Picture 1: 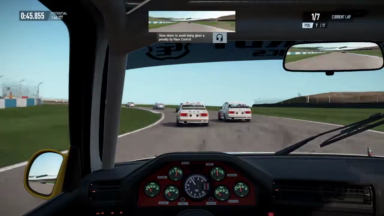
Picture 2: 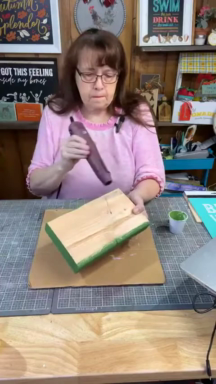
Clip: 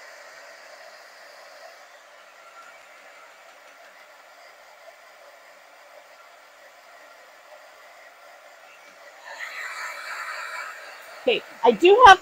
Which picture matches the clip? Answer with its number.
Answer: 2